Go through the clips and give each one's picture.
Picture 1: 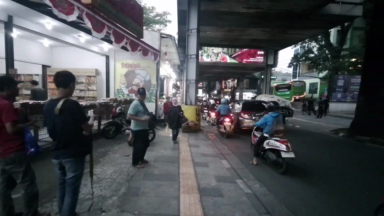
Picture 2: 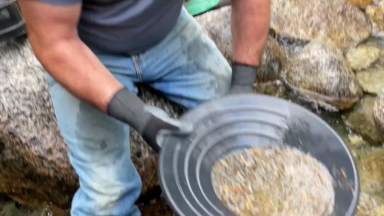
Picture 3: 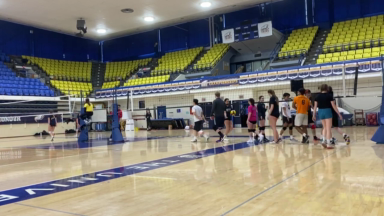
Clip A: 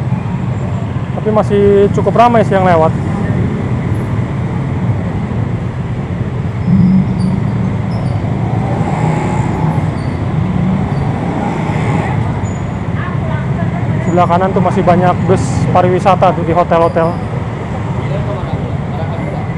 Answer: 1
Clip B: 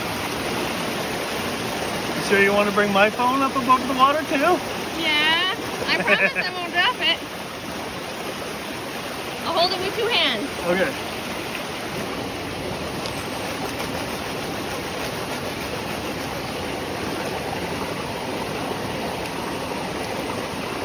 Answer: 2